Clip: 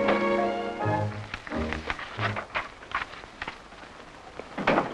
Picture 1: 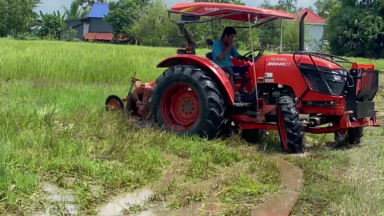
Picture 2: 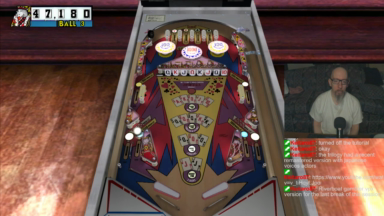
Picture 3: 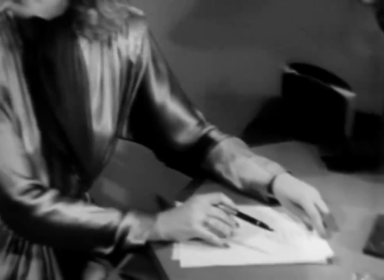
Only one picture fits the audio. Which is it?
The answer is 3